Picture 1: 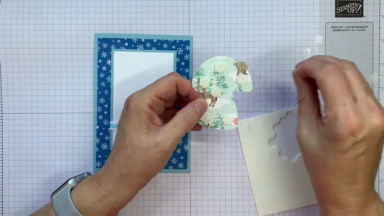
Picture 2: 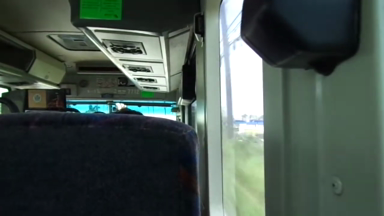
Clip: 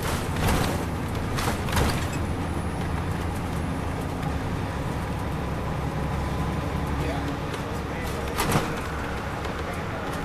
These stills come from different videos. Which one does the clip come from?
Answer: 2